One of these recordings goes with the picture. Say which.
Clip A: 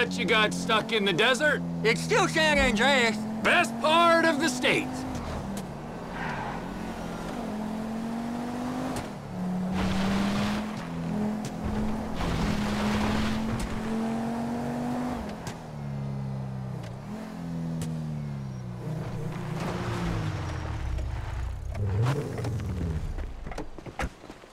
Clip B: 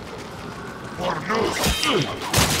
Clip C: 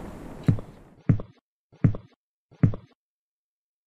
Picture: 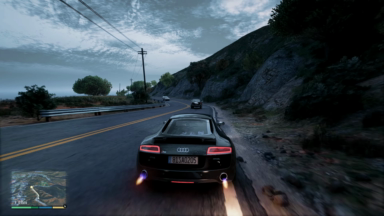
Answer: A